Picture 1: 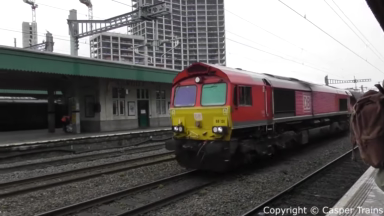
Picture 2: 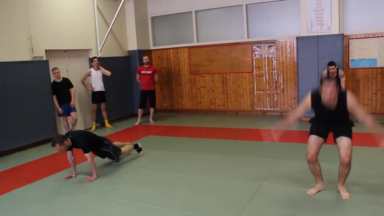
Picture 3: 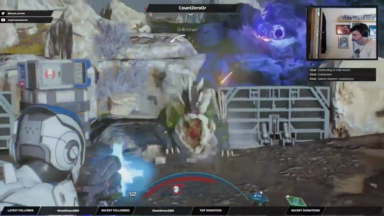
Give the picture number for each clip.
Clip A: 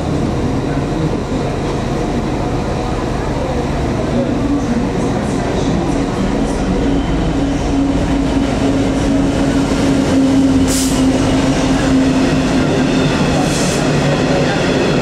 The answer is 1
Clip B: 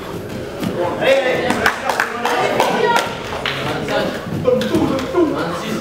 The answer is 2